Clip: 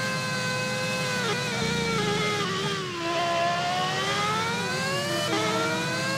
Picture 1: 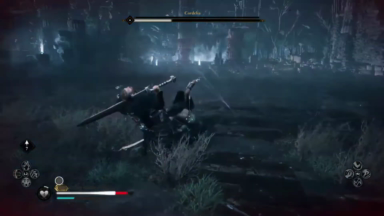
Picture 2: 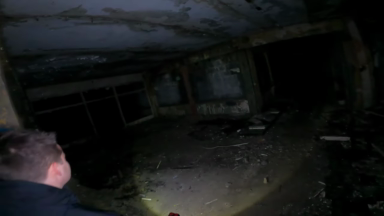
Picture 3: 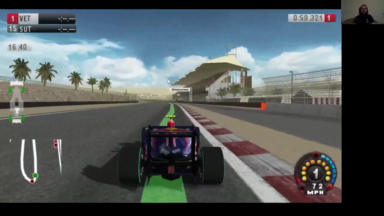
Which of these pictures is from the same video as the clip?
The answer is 3